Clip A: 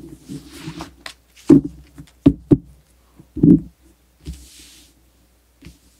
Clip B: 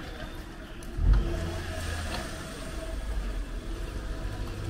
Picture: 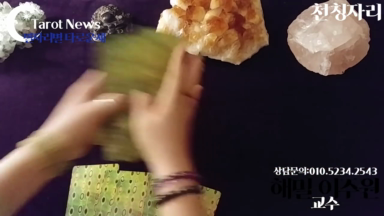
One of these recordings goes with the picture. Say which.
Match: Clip A